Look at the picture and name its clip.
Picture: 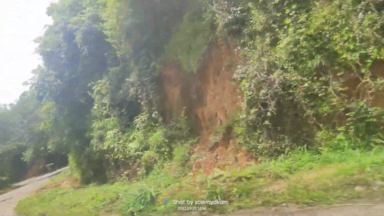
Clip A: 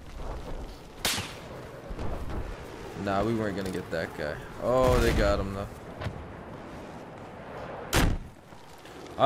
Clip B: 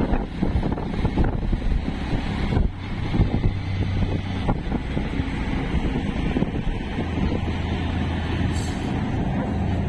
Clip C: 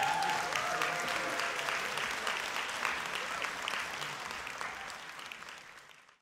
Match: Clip B